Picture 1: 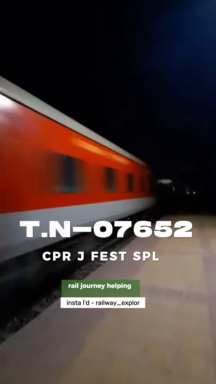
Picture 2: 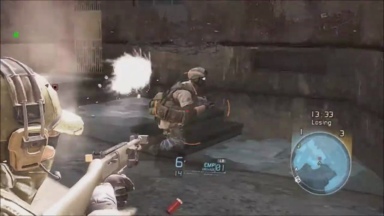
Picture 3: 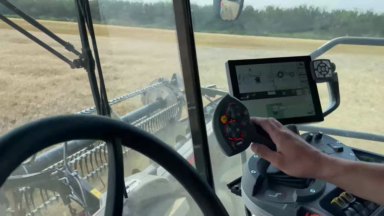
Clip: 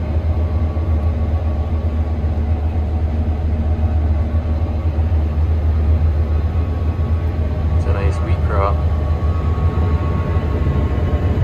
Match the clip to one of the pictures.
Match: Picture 3